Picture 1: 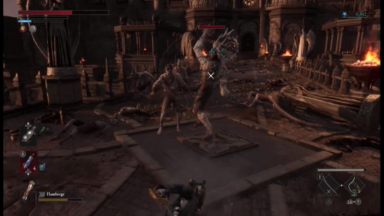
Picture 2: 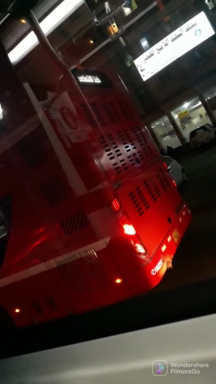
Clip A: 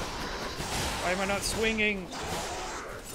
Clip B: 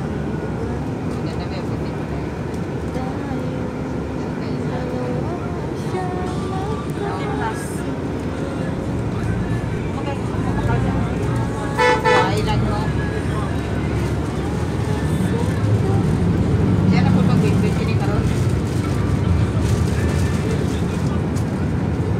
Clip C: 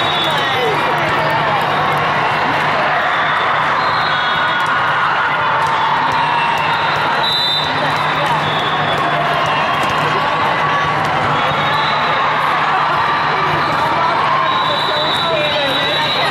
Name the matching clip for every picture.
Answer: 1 A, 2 B